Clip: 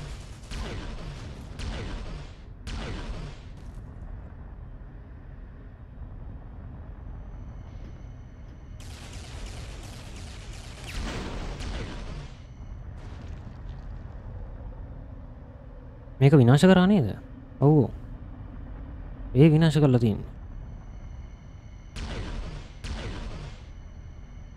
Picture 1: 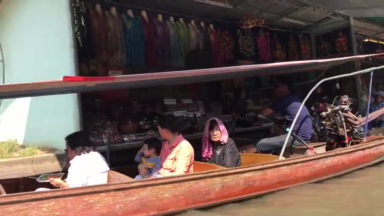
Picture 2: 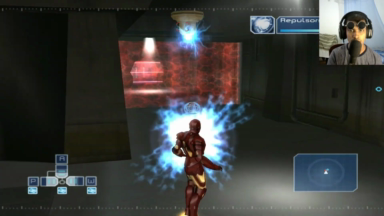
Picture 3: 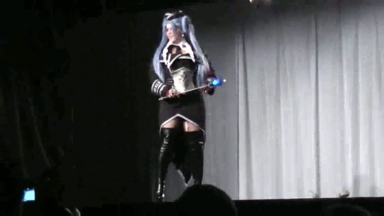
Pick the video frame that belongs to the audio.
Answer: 2